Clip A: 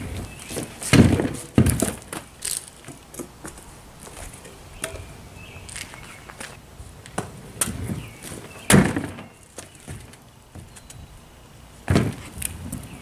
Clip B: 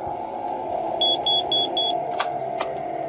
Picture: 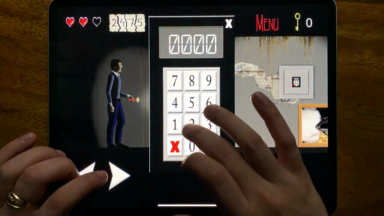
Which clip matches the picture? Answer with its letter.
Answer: B